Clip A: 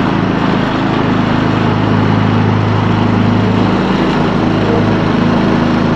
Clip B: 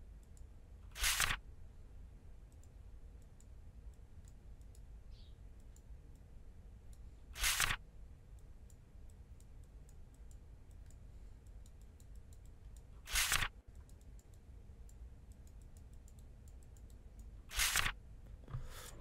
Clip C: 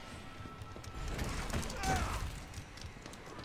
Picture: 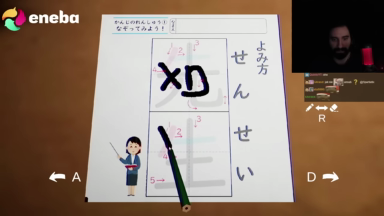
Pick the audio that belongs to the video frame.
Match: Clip B